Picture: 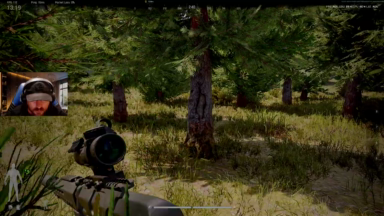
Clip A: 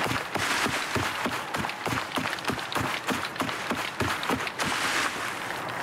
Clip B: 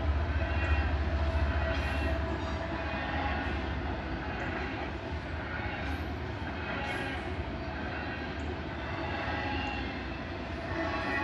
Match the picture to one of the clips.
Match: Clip A